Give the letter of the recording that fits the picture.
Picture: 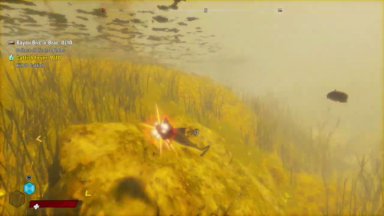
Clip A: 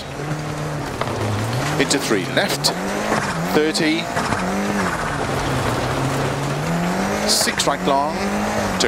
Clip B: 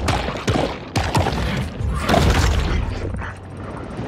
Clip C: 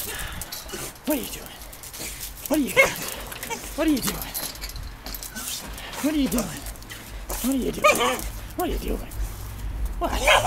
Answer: B